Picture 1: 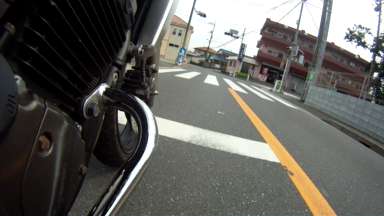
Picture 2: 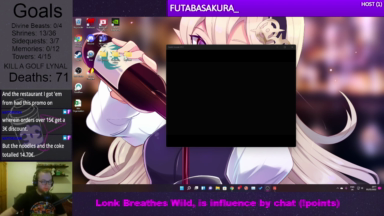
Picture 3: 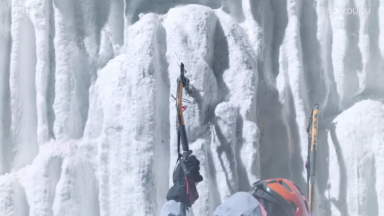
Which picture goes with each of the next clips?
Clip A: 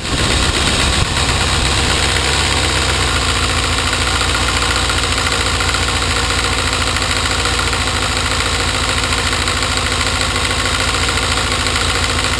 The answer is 1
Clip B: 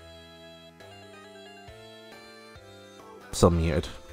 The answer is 2